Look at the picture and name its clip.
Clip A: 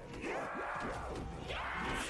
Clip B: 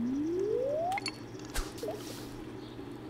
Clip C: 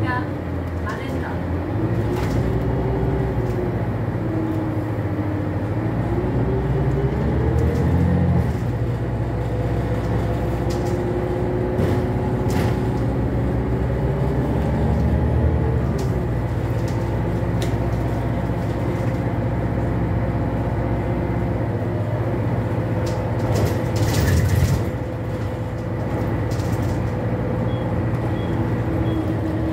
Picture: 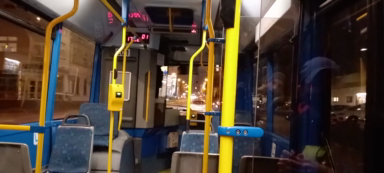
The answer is C